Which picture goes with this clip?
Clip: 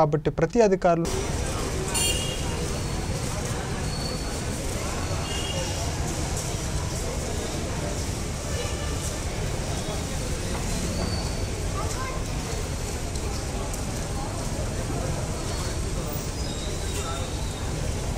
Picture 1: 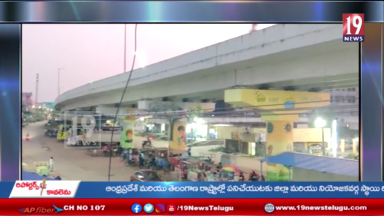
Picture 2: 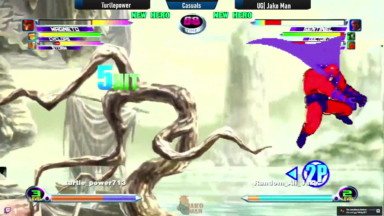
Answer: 1